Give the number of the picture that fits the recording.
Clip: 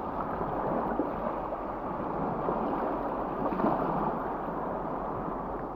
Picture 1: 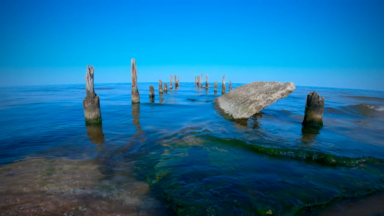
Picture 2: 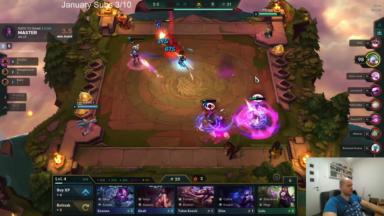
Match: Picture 1